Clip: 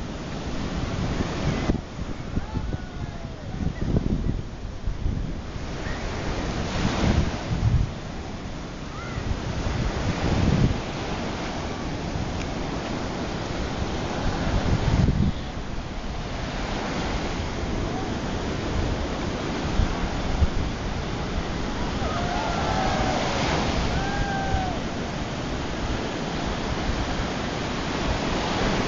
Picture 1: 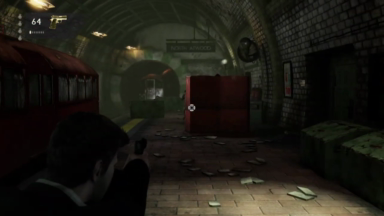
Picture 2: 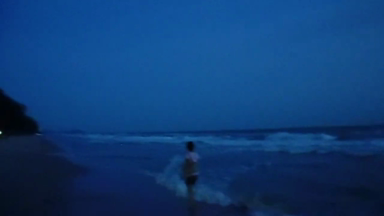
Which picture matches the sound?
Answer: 2